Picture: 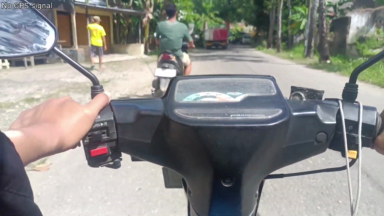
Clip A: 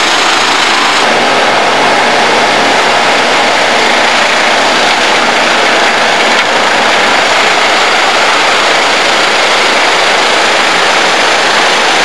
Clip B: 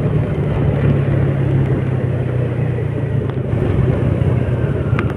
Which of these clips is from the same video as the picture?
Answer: B